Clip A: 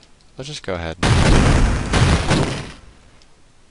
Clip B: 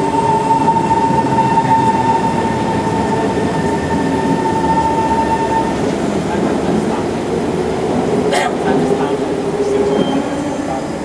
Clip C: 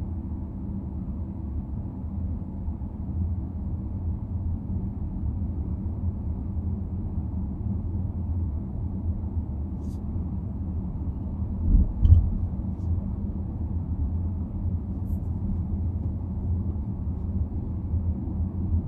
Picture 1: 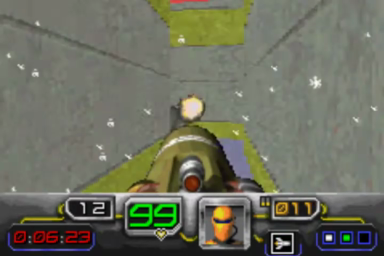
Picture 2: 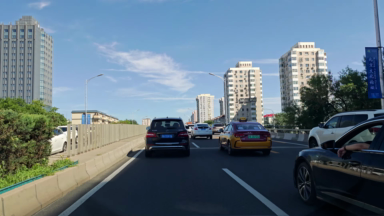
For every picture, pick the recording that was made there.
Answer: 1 A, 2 C